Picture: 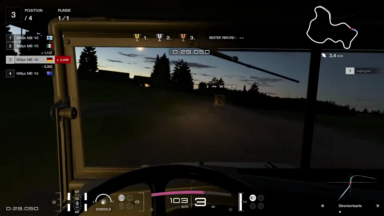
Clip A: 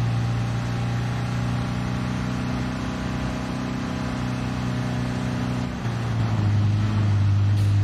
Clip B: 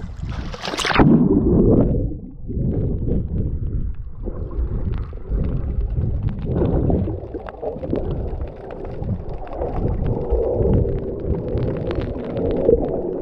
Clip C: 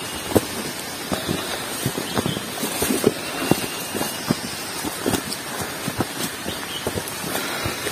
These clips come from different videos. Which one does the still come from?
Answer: A